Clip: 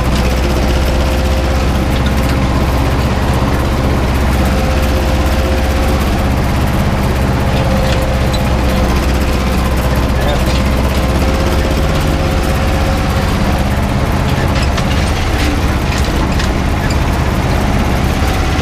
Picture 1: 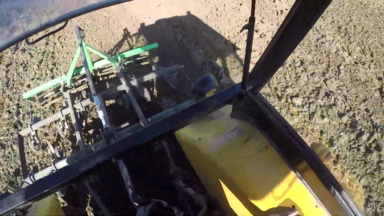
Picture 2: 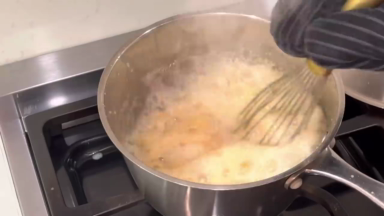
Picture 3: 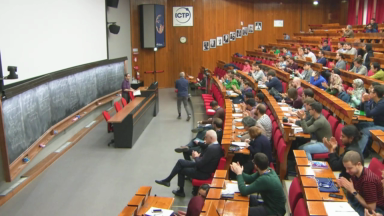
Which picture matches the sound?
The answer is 1